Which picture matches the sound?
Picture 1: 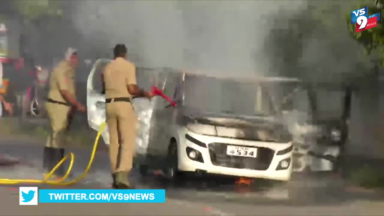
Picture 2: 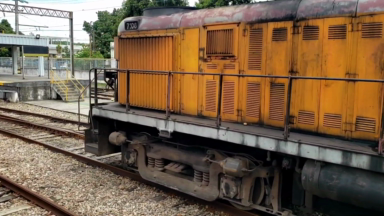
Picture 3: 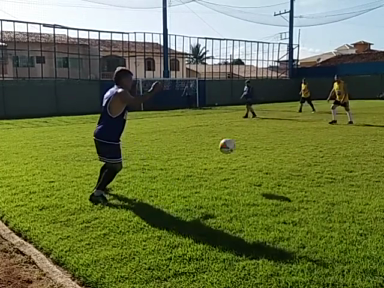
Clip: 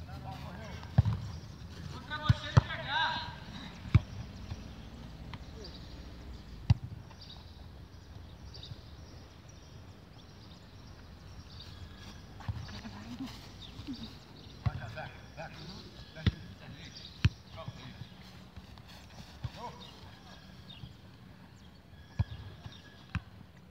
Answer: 3